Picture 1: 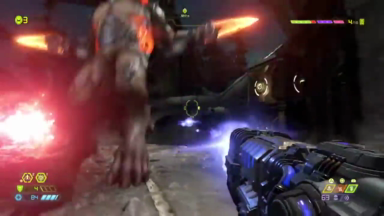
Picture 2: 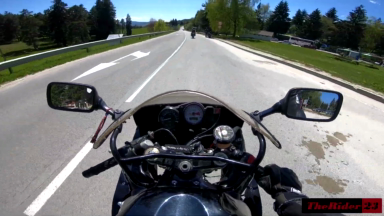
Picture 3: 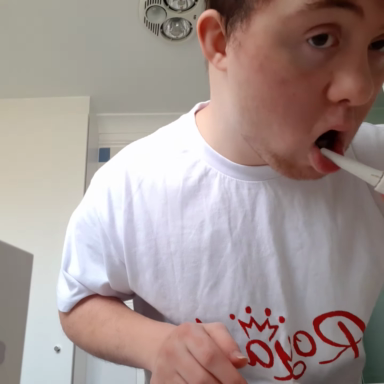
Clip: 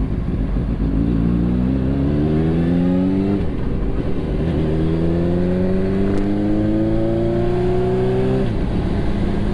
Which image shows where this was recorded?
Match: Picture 2